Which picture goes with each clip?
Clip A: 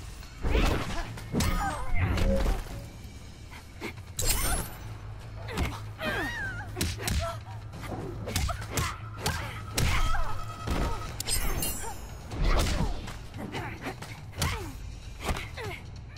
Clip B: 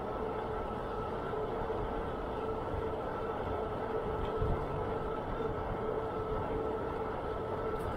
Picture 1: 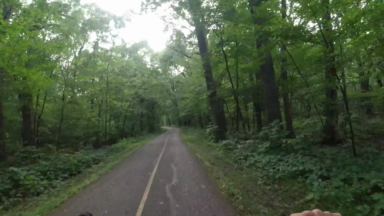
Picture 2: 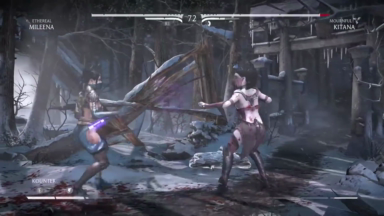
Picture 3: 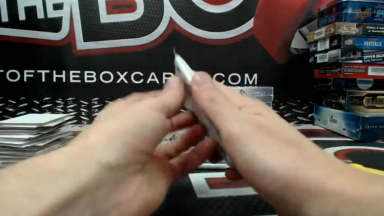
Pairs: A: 2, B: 1